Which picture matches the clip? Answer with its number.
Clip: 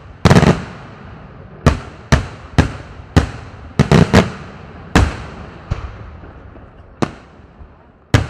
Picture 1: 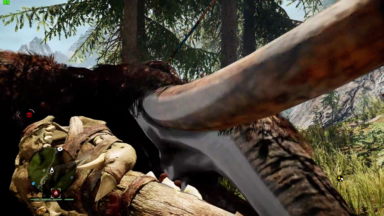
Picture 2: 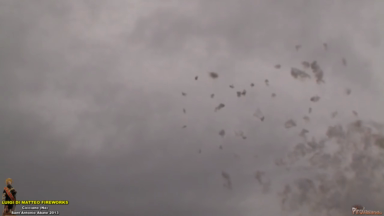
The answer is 2